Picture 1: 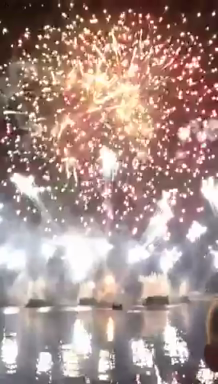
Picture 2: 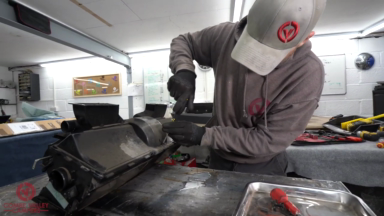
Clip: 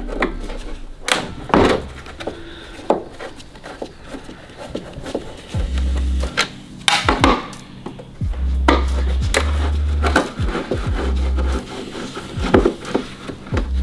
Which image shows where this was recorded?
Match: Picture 2